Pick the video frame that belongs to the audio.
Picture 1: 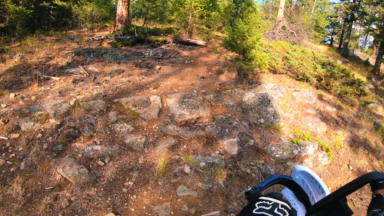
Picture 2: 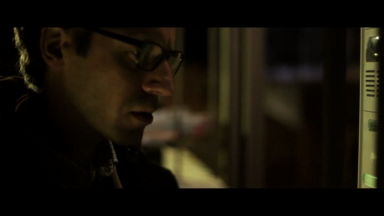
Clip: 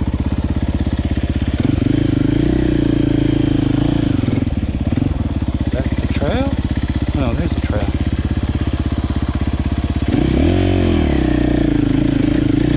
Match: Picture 1